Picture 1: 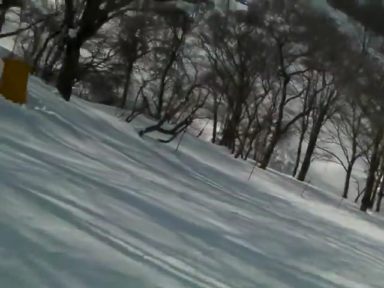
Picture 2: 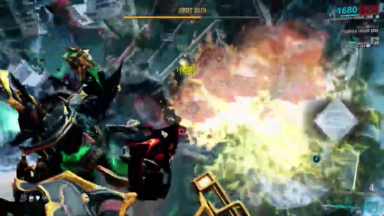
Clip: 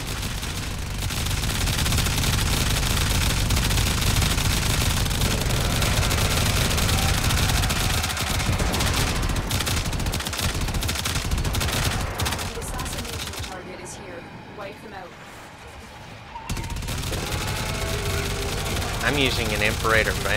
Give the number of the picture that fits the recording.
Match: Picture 2